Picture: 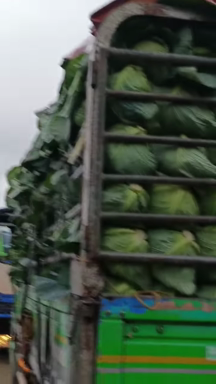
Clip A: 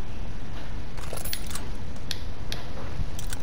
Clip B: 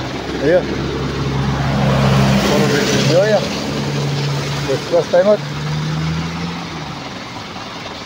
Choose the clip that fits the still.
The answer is B